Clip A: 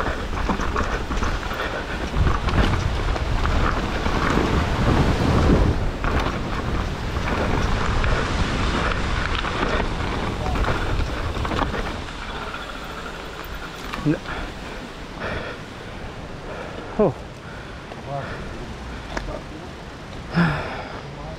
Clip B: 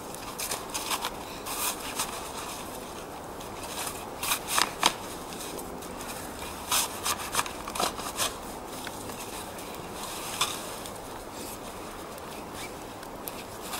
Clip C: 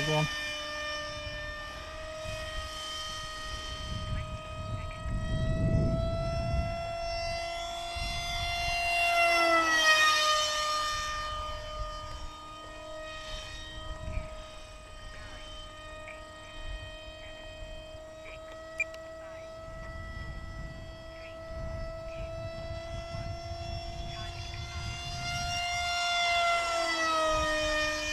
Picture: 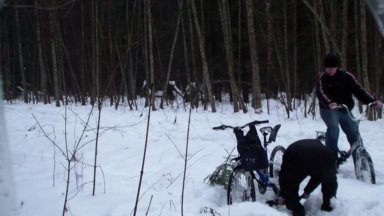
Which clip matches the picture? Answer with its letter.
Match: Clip B